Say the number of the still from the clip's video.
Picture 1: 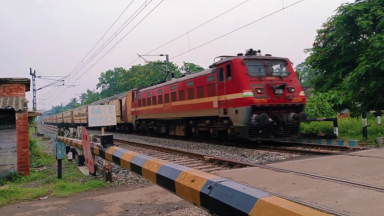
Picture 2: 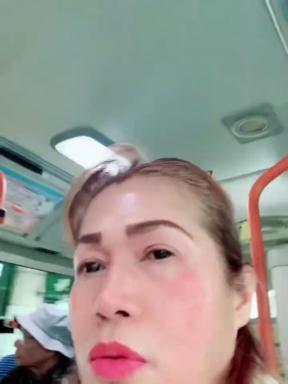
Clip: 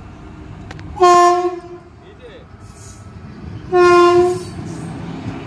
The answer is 1